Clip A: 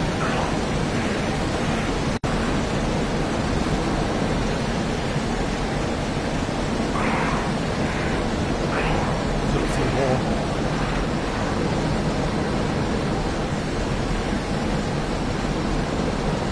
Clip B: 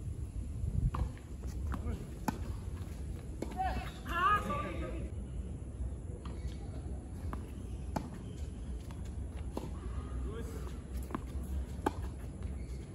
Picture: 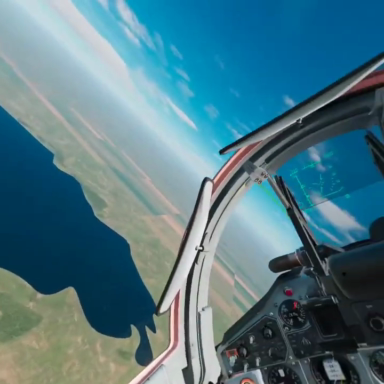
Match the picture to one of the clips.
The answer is A